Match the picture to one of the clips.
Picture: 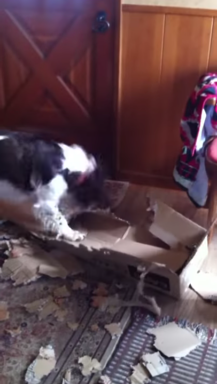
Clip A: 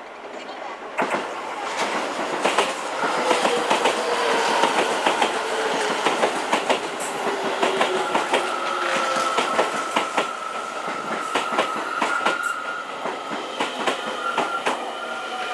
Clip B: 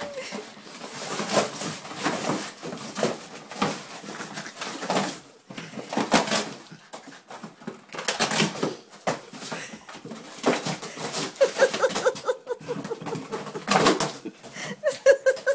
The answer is B